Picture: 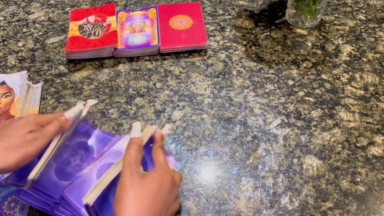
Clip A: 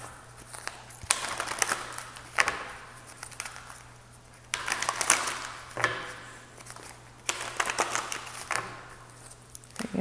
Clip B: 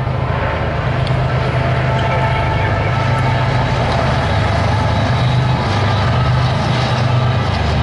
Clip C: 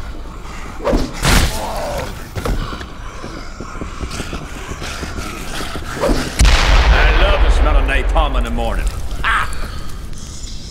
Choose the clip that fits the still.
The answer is A